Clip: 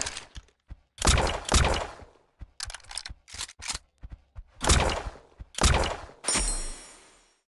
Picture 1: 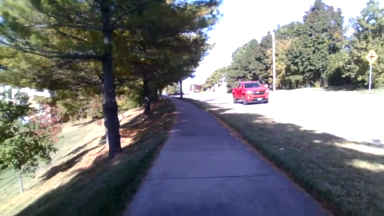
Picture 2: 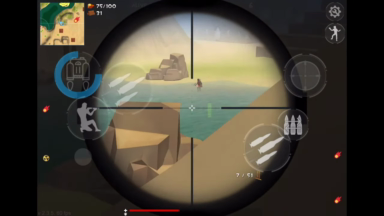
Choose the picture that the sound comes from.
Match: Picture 2